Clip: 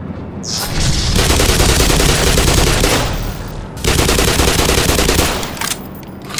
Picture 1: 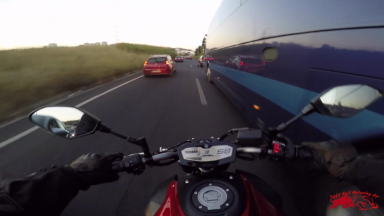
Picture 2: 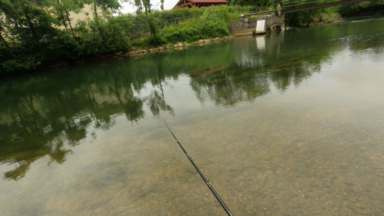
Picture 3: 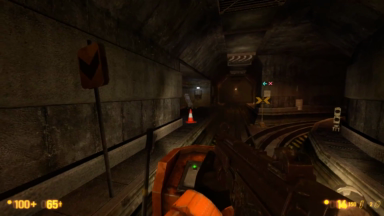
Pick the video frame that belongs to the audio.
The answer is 3